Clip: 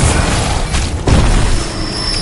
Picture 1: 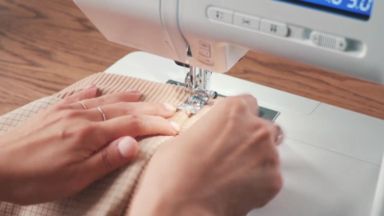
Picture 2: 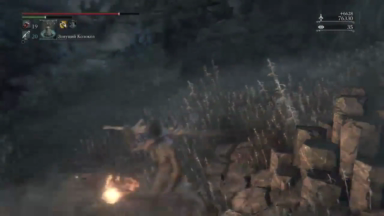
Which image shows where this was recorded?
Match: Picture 2